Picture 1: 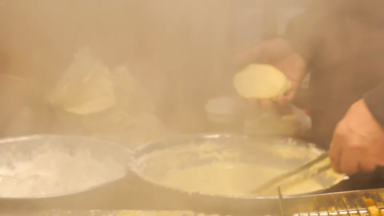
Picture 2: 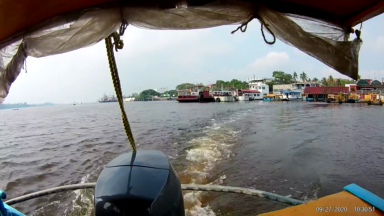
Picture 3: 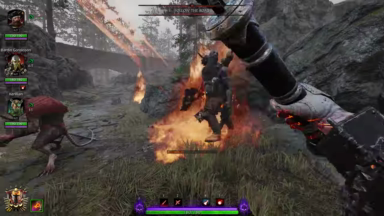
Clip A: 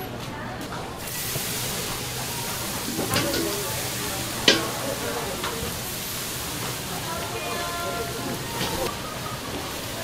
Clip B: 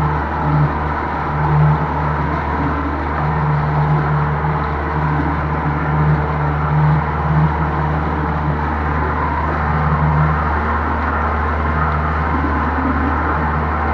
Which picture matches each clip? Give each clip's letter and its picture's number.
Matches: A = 1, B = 2